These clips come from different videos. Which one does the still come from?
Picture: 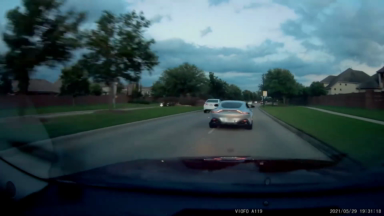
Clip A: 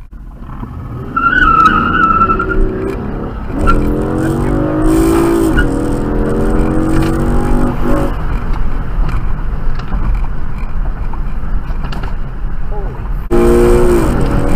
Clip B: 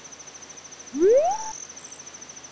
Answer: A